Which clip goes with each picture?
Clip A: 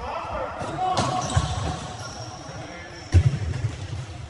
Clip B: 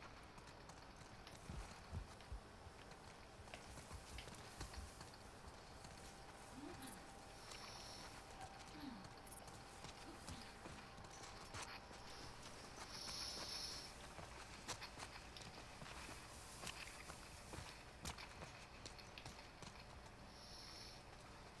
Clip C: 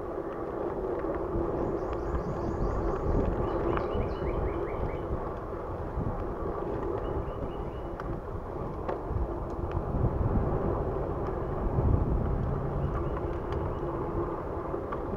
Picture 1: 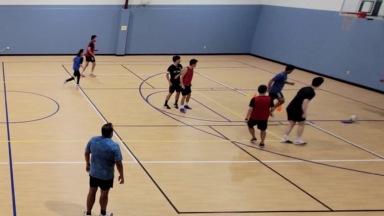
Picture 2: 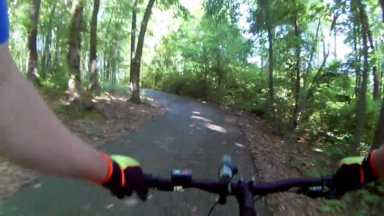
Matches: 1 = A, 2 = C